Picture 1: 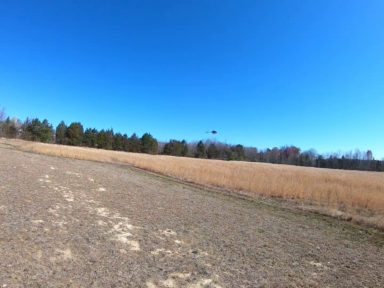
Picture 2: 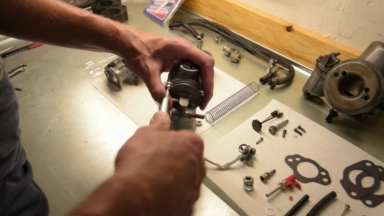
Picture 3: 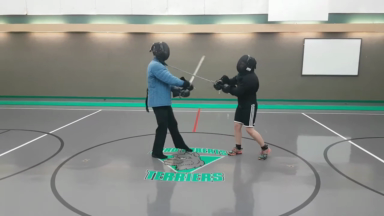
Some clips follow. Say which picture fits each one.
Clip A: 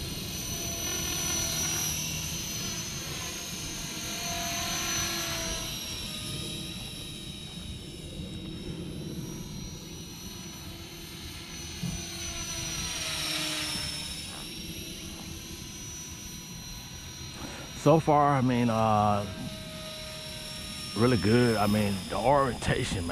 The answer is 1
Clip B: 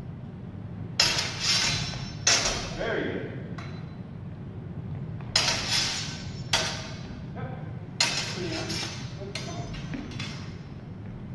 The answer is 3